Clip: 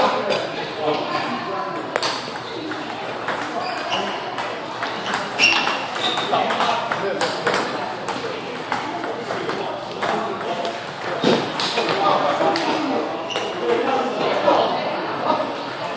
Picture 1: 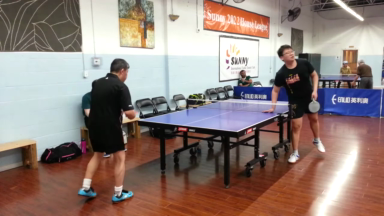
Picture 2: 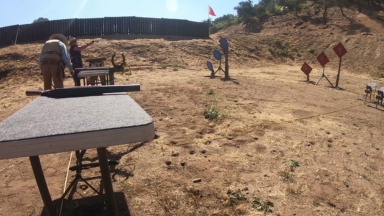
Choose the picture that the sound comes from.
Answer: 1